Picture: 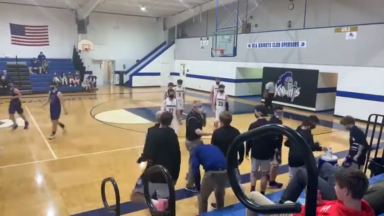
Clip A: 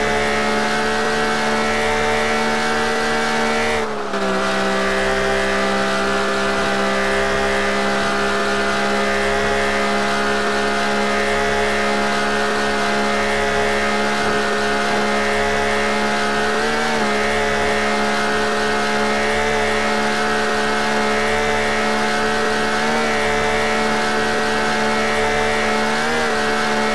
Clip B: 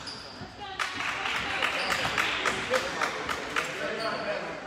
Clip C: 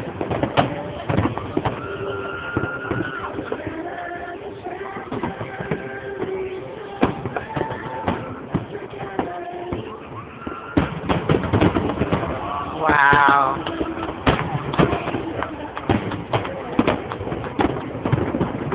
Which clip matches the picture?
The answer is B